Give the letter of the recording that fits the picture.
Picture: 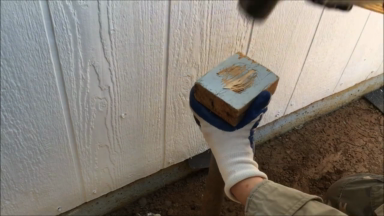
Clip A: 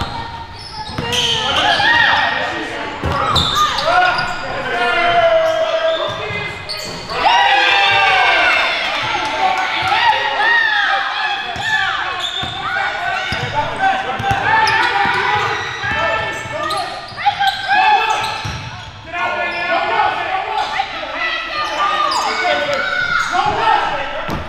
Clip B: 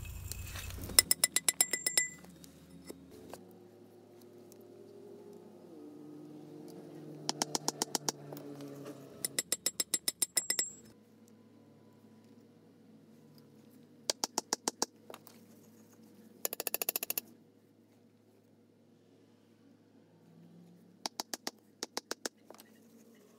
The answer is B